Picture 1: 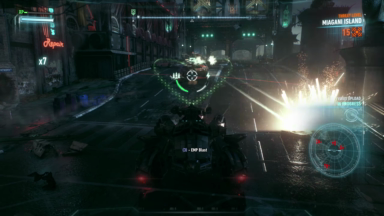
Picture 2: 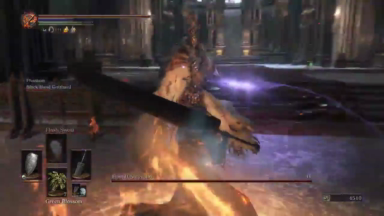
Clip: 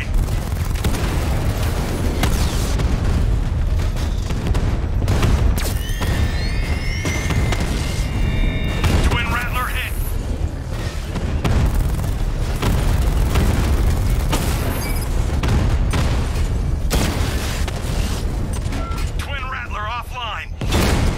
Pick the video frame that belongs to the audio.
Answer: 1